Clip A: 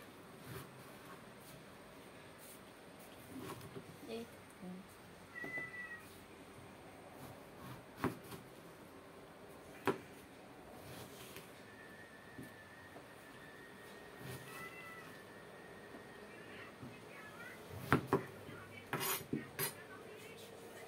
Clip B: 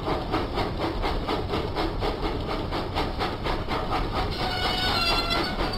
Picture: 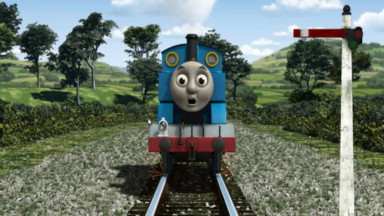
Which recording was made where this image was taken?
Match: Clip B